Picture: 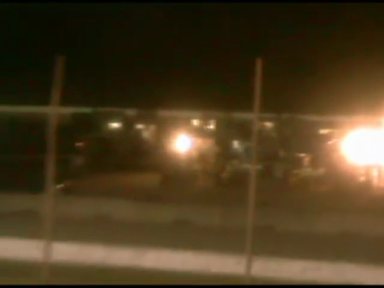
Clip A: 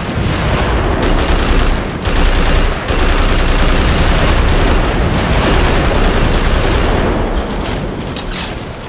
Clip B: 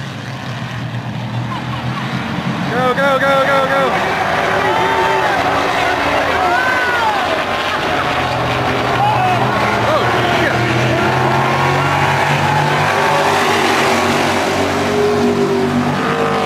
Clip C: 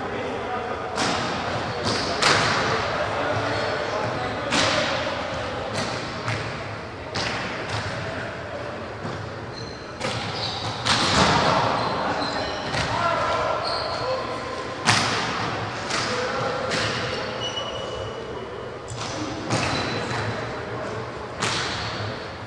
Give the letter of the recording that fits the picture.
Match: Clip B